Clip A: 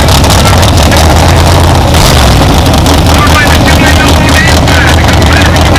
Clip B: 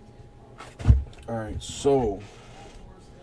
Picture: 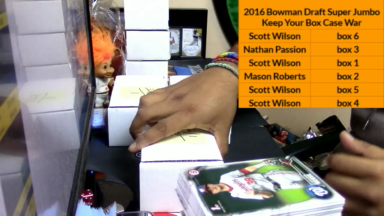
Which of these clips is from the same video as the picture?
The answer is B